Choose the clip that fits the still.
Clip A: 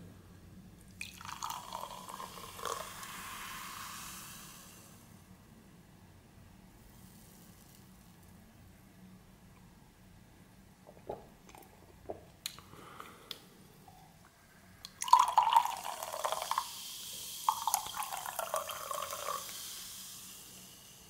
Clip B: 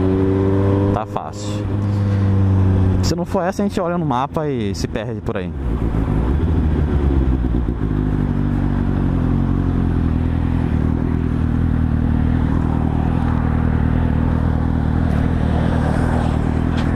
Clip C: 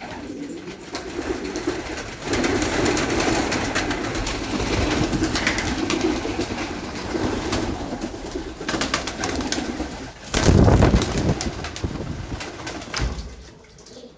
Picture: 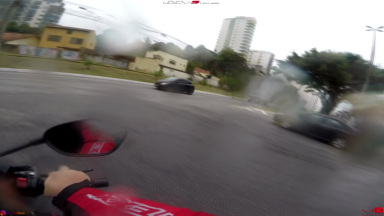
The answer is B